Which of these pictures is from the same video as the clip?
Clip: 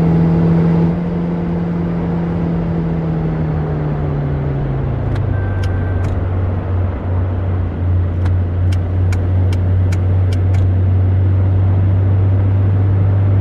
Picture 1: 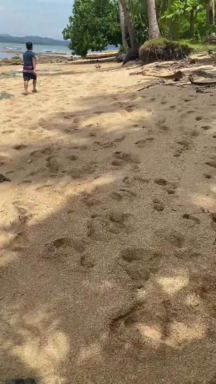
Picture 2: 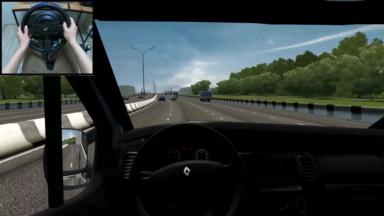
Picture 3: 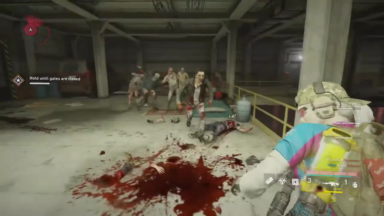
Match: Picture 2